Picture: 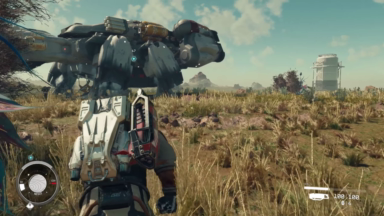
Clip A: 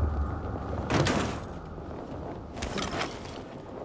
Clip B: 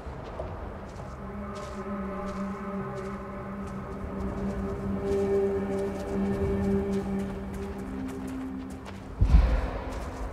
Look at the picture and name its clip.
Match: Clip B